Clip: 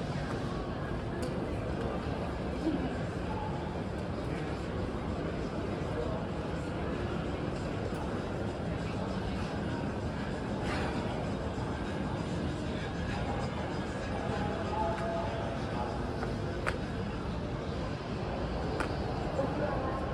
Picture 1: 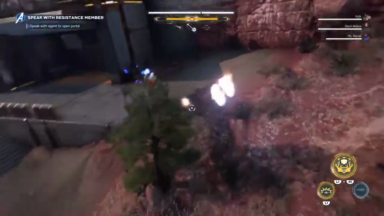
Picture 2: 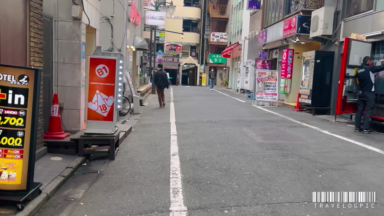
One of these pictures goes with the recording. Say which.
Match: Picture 2